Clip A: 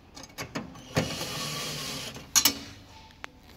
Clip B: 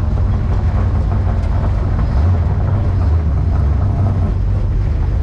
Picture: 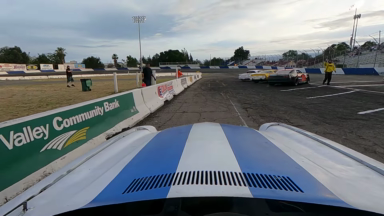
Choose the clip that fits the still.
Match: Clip B